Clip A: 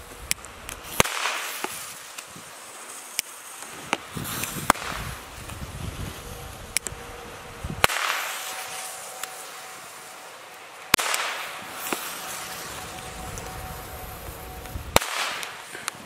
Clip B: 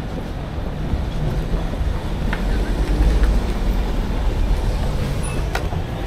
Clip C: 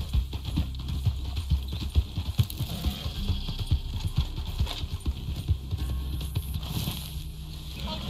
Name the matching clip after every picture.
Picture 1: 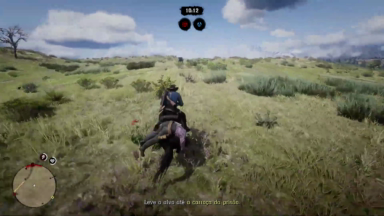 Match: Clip C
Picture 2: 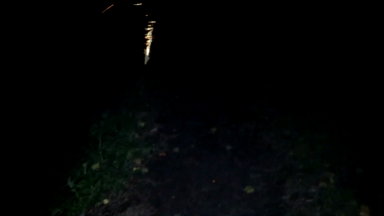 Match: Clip A